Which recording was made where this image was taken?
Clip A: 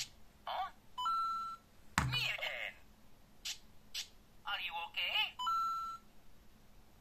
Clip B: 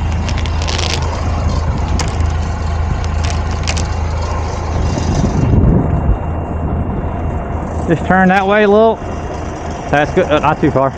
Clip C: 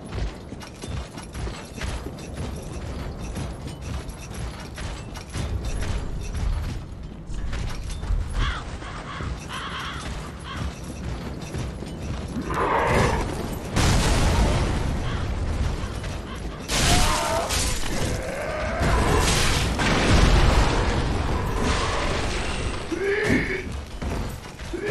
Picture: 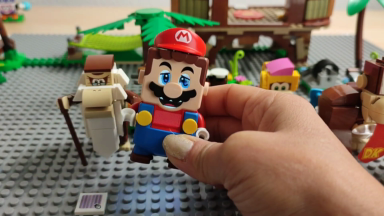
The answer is A